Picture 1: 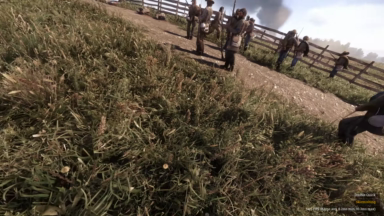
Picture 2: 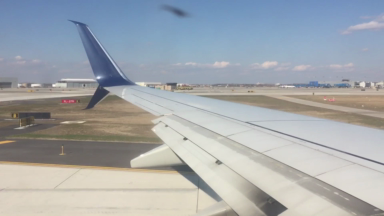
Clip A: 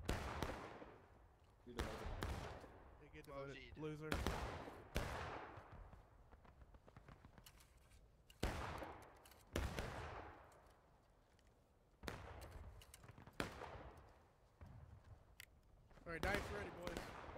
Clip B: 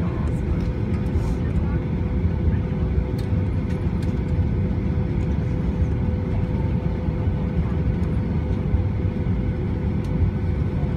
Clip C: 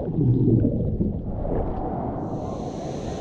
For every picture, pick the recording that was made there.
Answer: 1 A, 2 B